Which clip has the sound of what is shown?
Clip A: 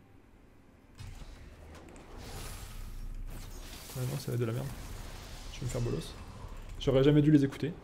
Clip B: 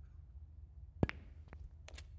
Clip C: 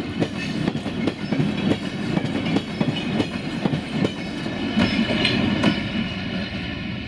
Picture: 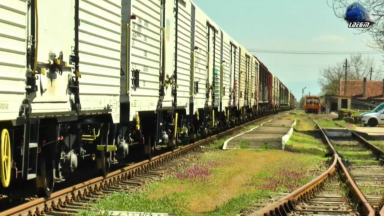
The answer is C